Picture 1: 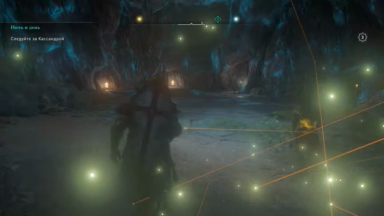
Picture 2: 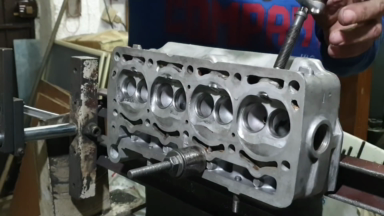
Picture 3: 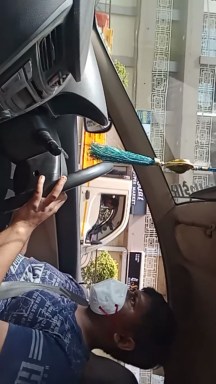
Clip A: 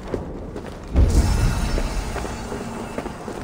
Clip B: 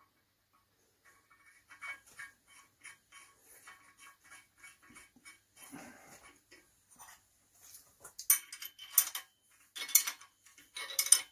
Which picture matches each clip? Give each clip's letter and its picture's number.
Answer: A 1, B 2